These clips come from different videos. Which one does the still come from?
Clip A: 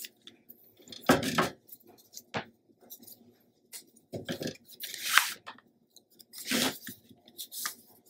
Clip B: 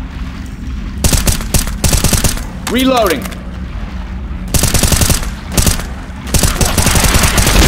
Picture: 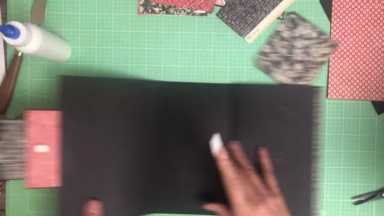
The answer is A